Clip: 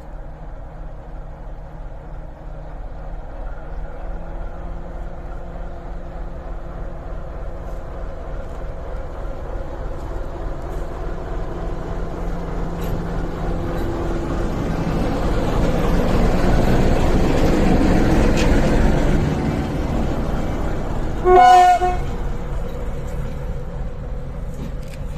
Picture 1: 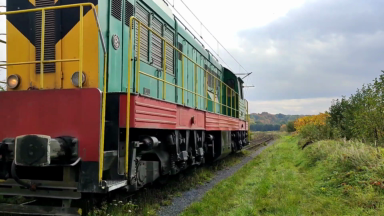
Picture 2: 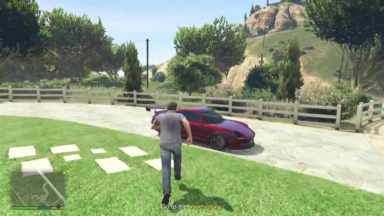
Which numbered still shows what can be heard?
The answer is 1